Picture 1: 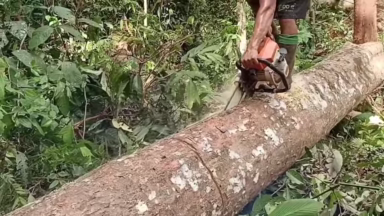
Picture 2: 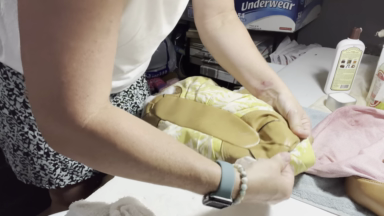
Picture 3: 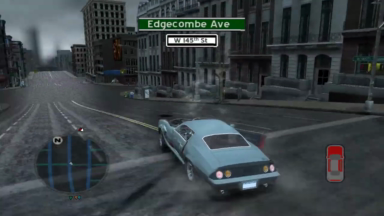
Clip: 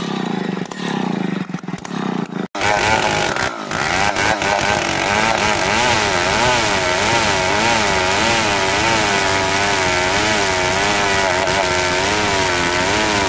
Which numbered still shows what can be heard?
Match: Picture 1